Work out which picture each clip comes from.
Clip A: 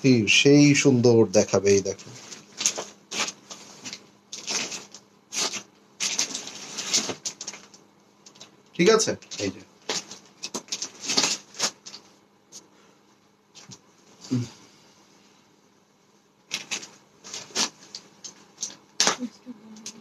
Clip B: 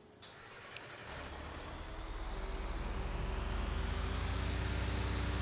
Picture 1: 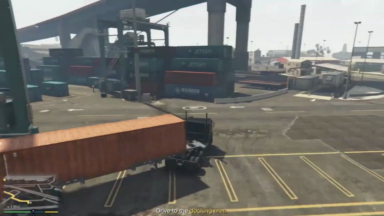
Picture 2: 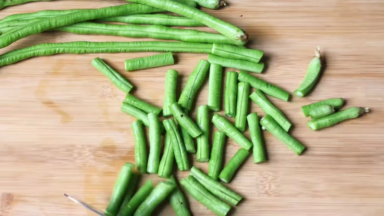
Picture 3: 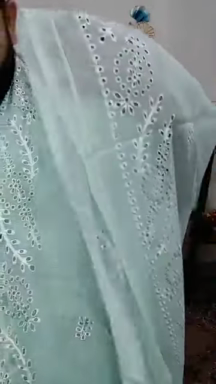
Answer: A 3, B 1